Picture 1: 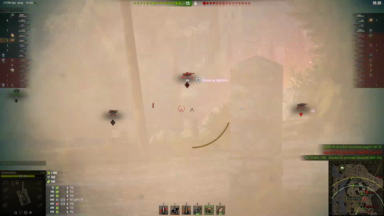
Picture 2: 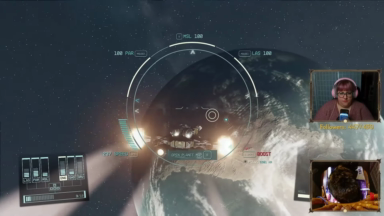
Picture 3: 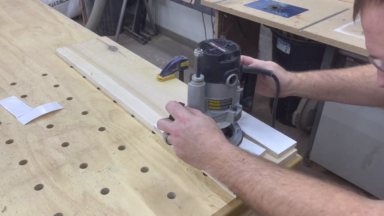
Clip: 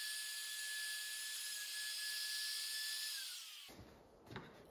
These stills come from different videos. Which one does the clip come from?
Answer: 3